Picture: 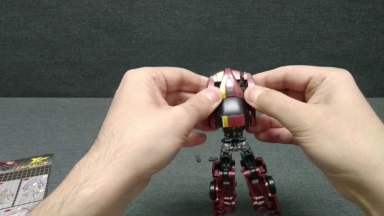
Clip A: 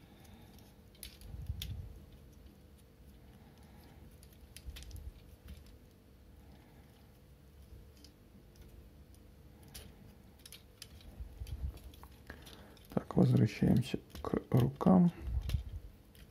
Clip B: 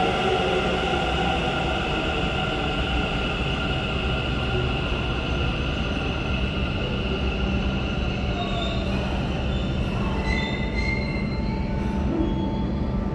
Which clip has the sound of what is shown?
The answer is A